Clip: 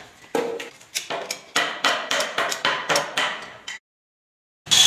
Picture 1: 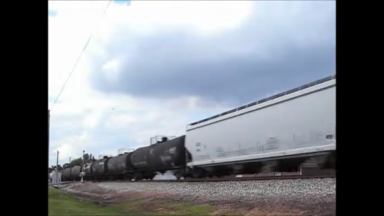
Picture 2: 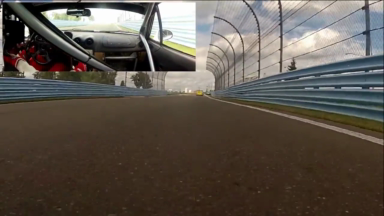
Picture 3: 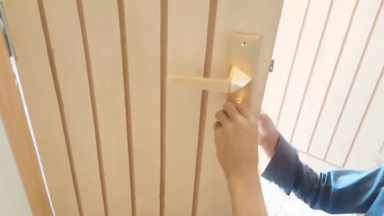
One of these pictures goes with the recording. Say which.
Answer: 3